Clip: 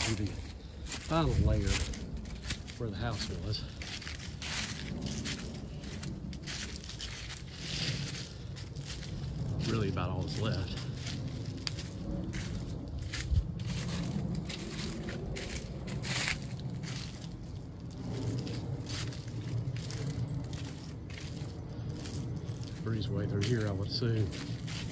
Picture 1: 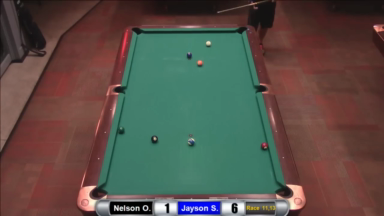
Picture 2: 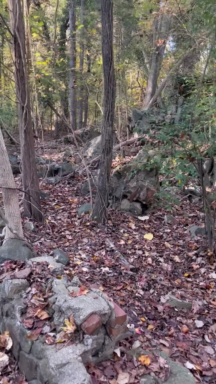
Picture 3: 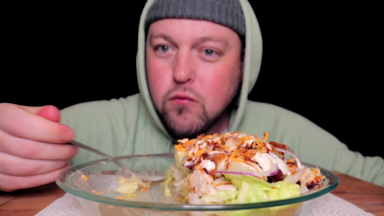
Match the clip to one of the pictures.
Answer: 2